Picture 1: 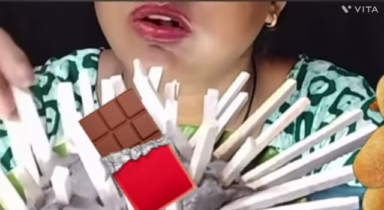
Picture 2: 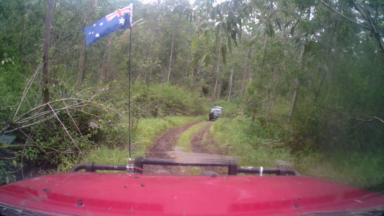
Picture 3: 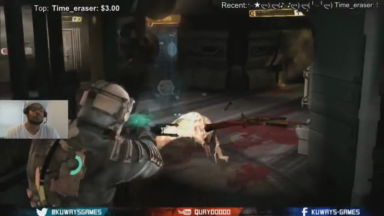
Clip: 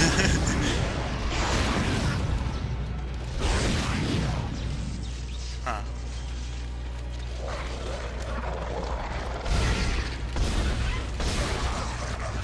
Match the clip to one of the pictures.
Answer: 3